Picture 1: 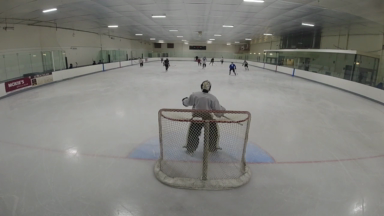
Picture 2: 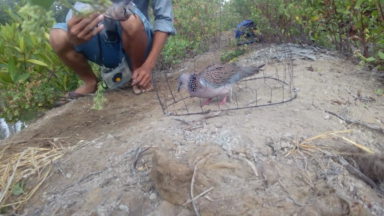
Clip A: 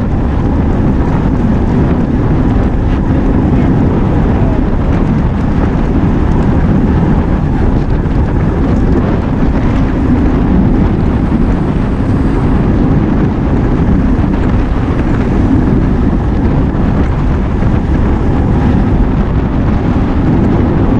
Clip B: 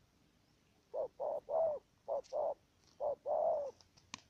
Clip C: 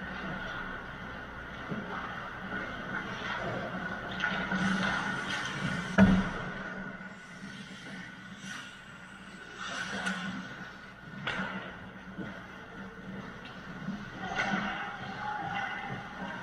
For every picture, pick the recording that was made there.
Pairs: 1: C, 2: B